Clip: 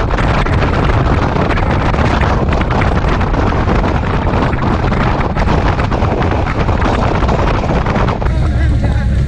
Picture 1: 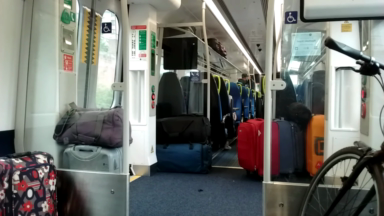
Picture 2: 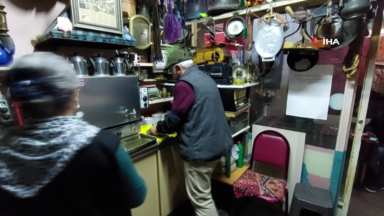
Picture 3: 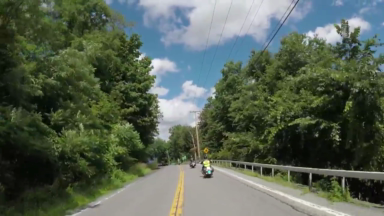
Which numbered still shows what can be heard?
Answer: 3